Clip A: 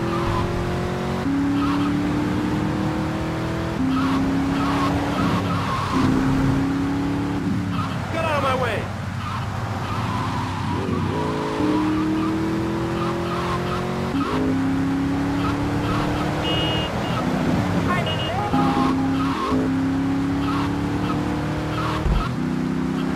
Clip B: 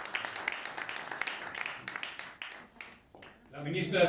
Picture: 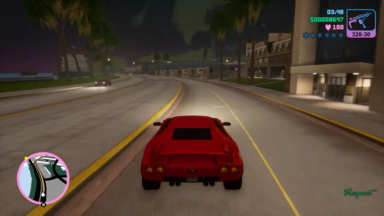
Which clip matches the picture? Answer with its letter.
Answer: A